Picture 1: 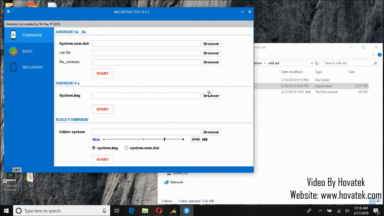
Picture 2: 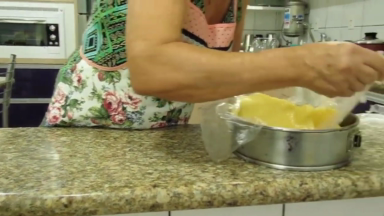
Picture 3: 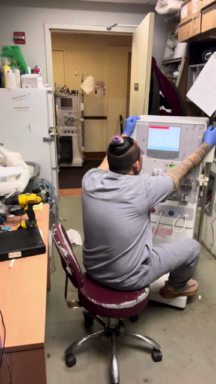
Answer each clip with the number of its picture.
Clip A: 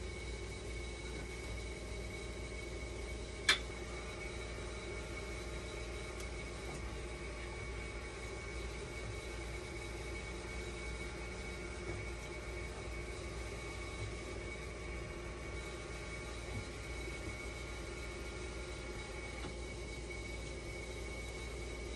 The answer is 3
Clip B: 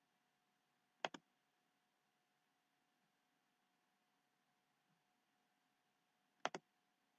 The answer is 1